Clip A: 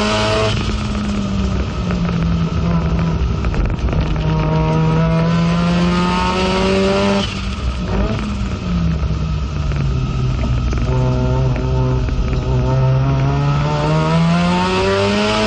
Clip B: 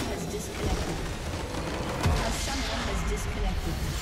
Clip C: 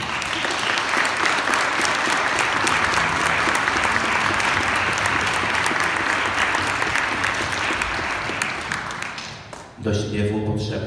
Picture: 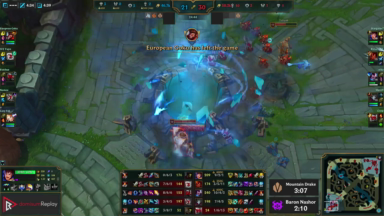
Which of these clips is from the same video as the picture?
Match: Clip B